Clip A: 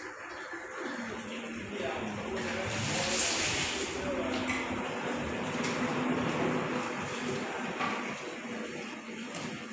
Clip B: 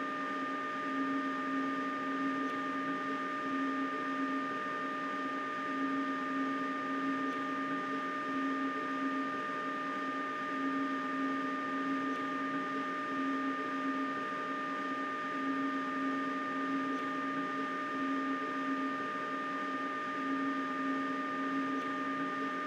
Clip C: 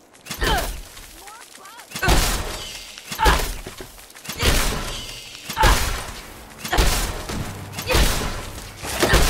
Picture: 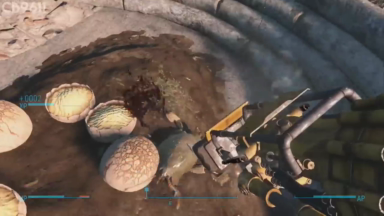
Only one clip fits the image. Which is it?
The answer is C